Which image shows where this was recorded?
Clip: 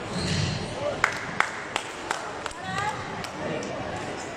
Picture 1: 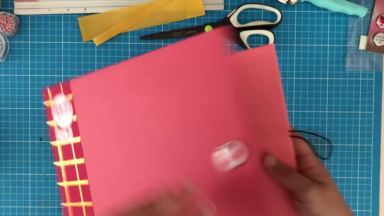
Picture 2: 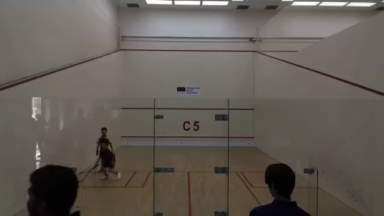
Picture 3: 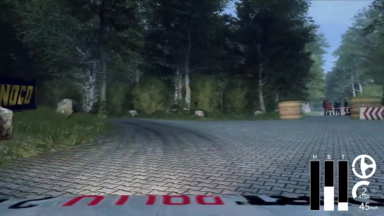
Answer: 2